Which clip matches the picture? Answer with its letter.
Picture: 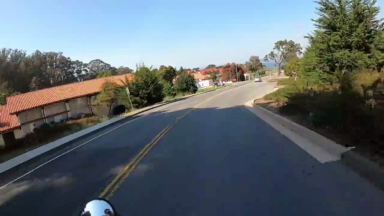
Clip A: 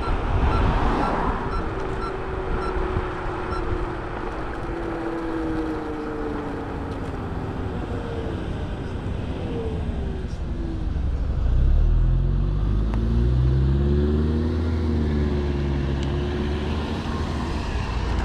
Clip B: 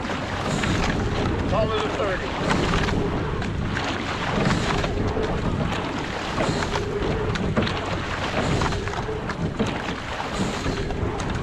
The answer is A